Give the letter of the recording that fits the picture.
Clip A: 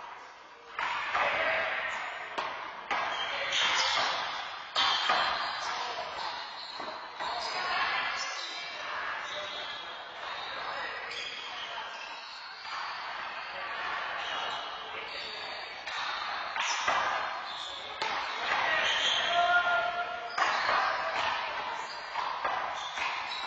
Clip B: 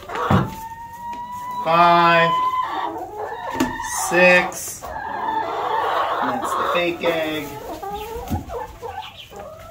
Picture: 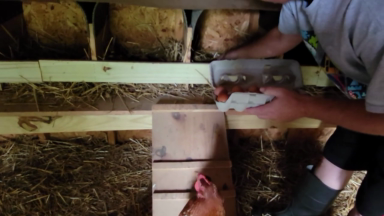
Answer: B